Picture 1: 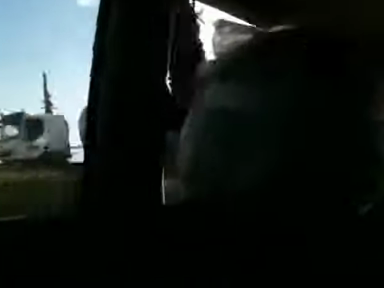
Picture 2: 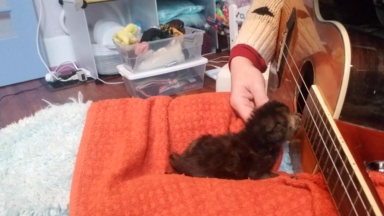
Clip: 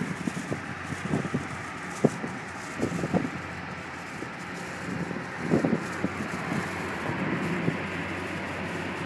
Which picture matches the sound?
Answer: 1